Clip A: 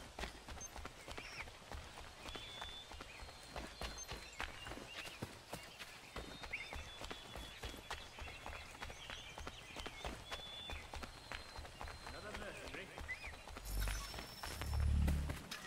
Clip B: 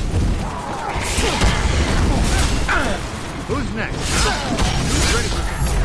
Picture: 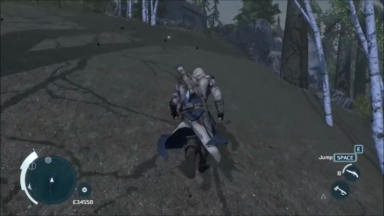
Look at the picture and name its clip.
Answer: A